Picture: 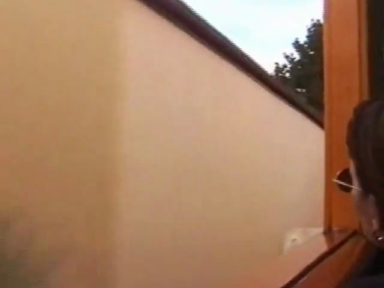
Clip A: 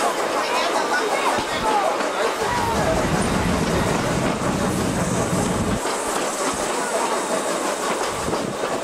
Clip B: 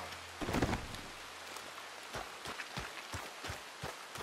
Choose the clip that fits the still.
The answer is A